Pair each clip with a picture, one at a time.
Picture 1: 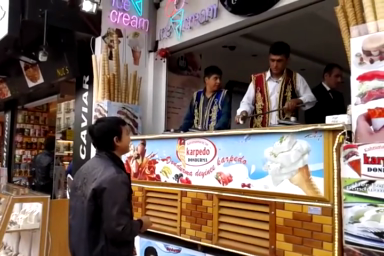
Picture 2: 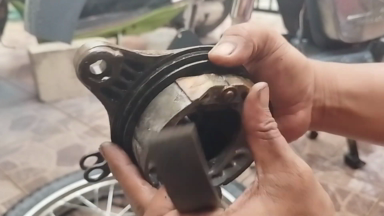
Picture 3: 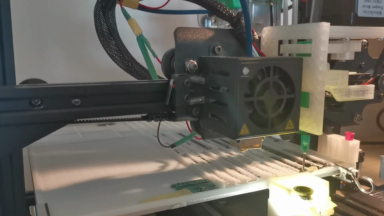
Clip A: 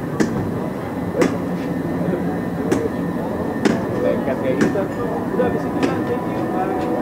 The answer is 1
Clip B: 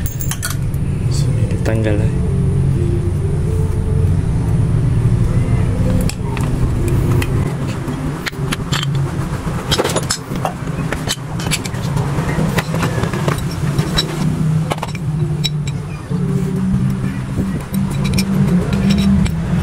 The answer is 2